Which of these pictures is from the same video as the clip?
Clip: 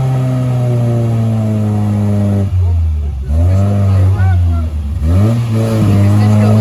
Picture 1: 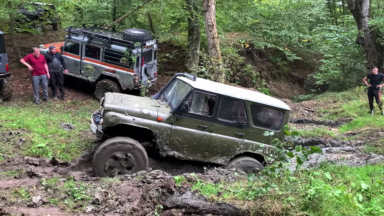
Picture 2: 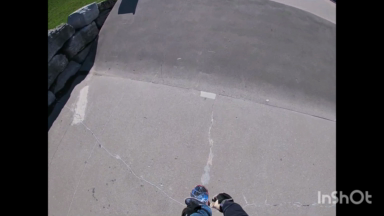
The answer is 1